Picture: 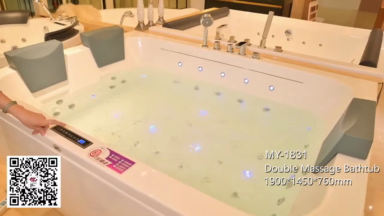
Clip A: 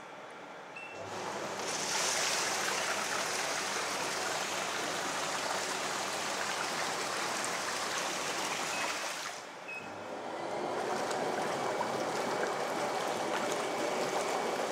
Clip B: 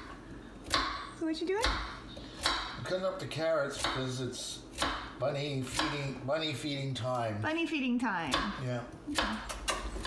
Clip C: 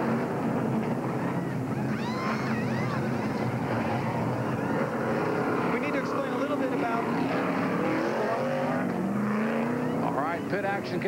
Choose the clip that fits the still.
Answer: A